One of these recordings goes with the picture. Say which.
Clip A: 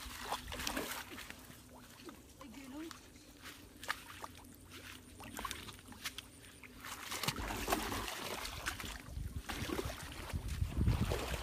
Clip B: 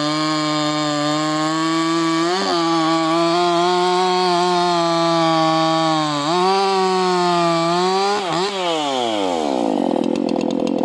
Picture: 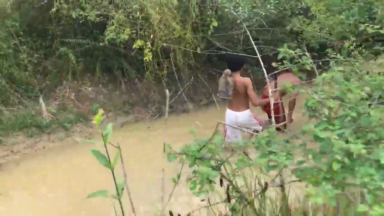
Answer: A